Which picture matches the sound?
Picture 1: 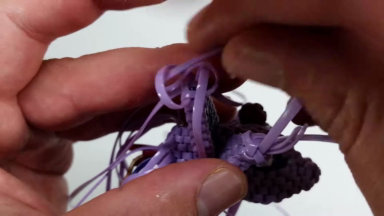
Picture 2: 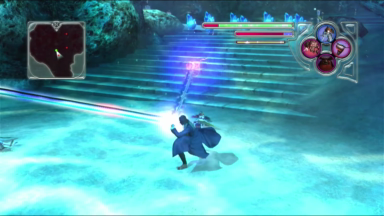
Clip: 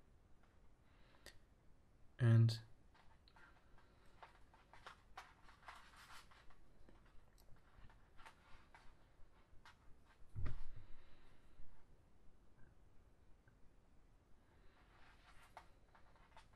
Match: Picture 1